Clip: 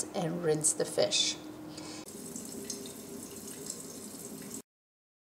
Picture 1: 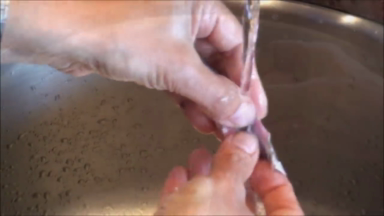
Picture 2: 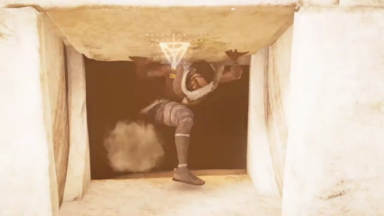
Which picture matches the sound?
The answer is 1